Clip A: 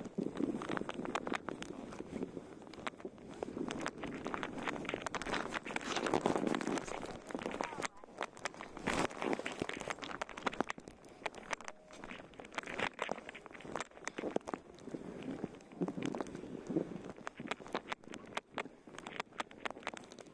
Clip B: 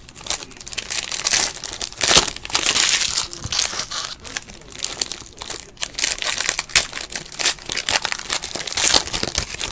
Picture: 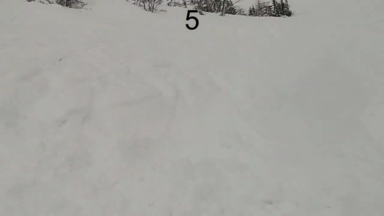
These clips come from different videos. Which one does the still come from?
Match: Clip A